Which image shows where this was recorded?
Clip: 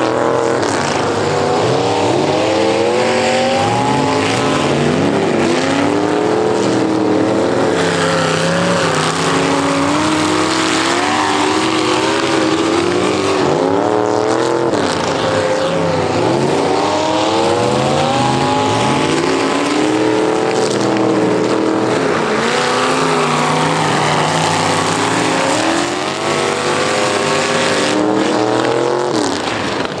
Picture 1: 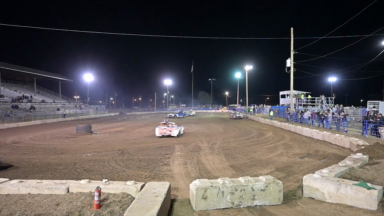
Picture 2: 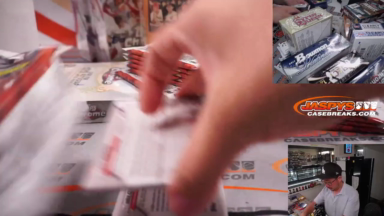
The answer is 1